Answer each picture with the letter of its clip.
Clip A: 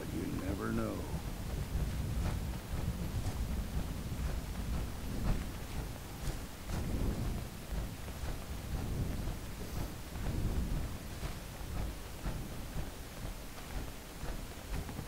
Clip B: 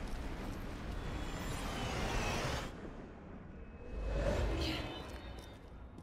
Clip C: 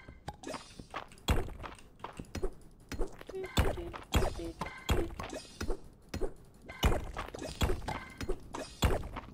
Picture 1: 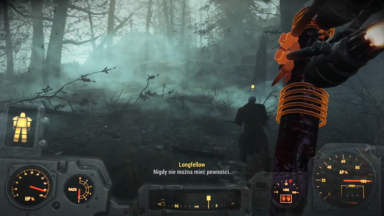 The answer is A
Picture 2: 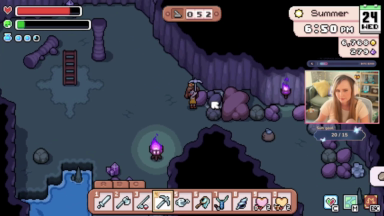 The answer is C